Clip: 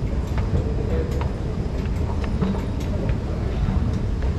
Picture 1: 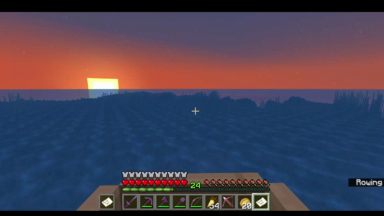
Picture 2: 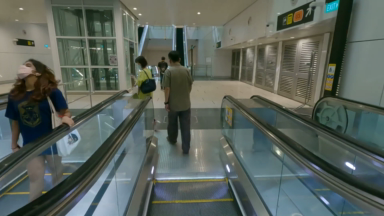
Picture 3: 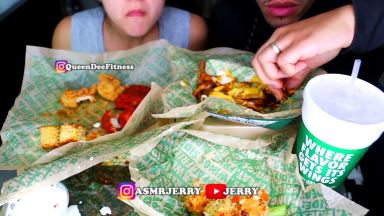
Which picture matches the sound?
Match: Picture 2